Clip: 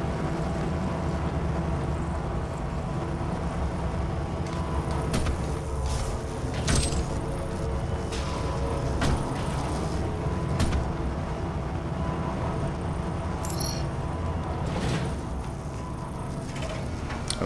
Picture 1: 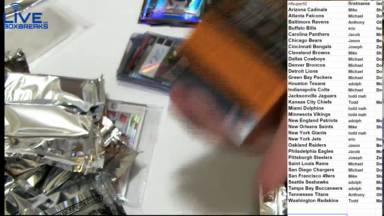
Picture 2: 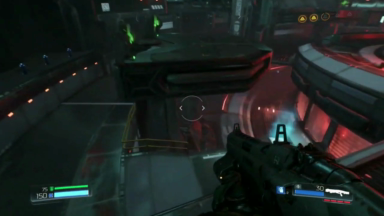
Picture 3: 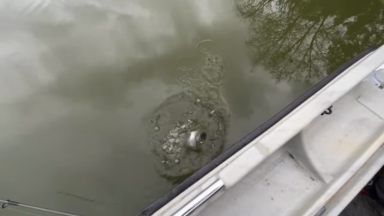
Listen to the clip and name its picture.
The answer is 2